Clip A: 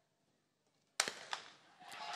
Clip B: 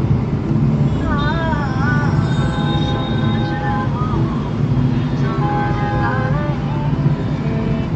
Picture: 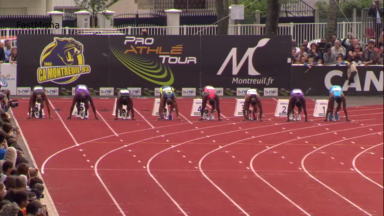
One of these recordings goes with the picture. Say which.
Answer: A